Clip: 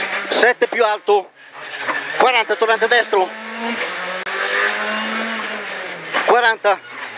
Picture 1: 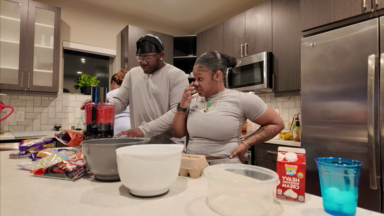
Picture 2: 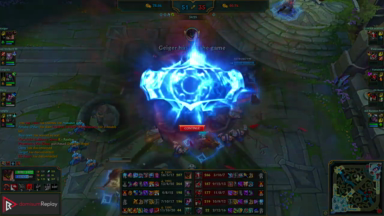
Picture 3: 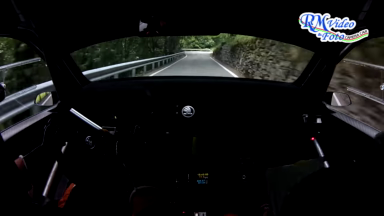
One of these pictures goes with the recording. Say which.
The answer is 3